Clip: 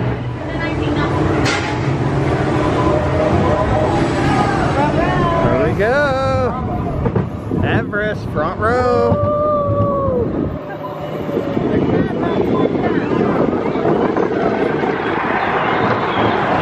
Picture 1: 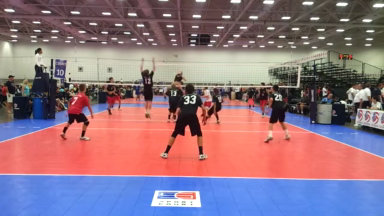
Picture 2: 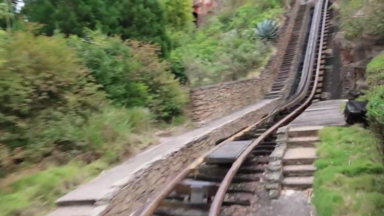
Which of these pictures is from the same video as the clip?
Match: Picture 2